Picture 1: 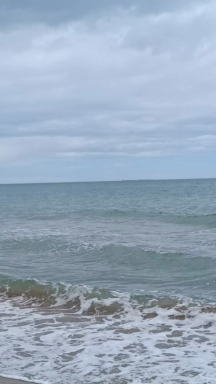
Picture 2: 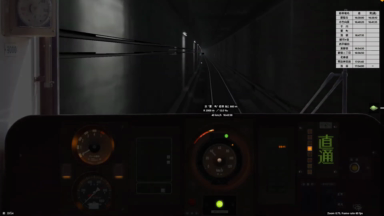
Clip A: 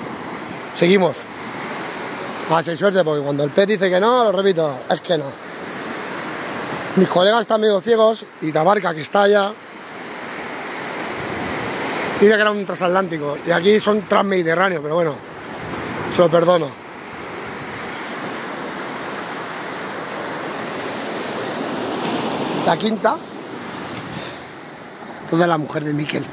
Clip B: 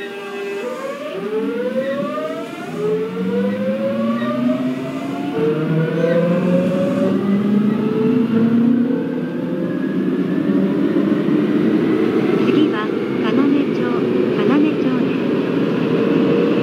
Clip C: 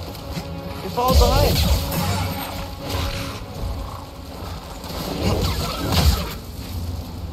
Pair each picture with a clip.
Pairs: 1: A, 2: B